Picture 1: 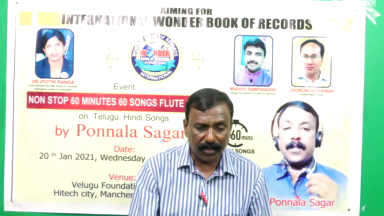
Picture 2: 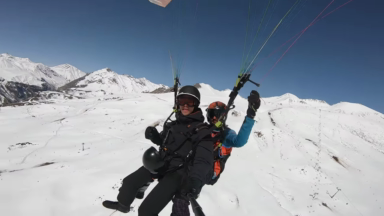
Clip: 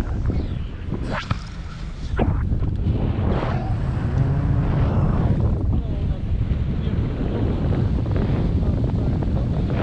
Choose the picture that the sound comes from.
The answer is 2